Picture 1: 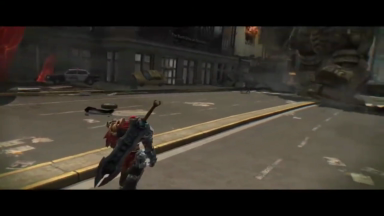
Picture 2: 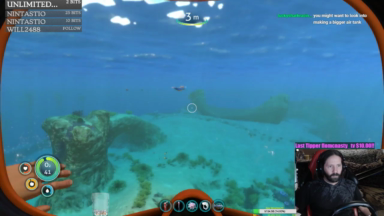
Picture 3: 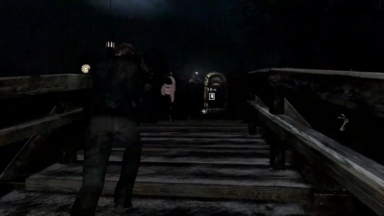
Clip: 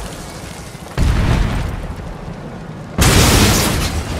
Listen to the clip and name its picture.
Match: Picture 1